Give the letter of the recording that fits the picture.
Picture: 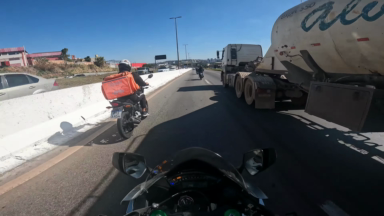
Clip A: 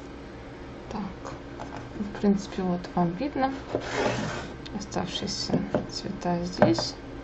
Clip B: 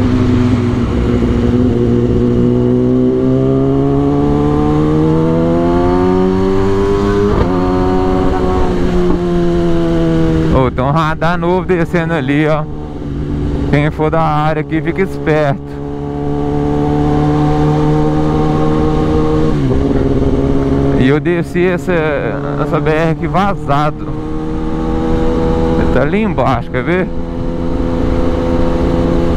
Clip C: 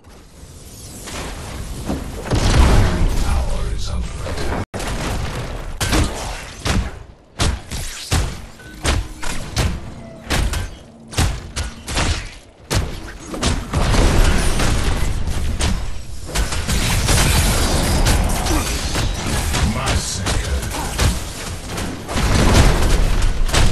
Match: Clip B